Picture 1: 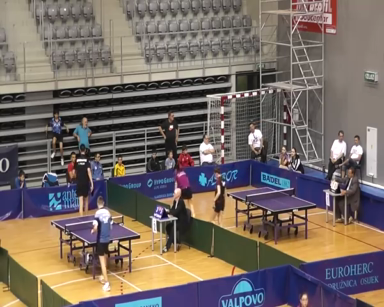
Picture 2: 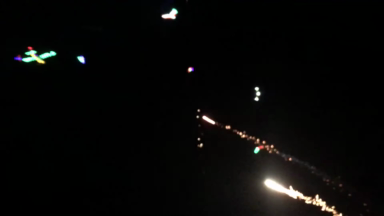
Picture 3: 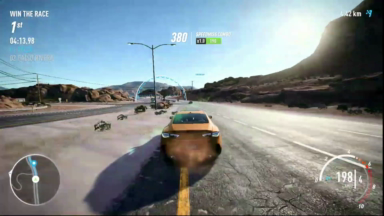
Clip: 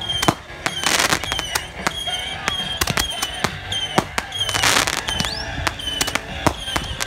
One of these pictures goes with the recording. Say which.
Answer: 2